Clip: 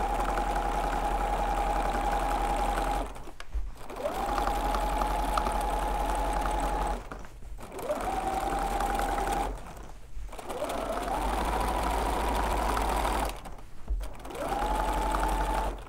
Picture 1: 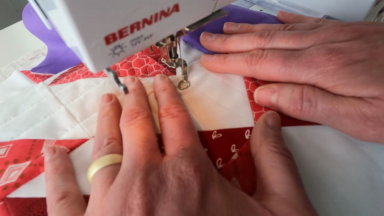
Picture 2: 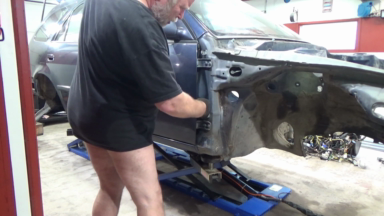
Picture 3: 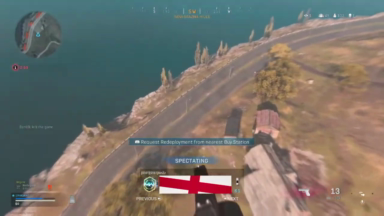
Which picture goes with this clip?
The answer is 1